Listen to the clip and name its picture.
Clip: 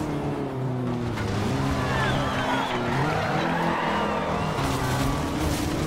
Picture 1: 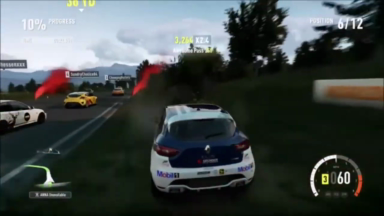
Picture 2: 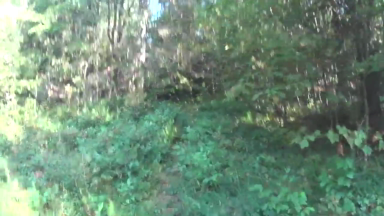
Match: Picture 1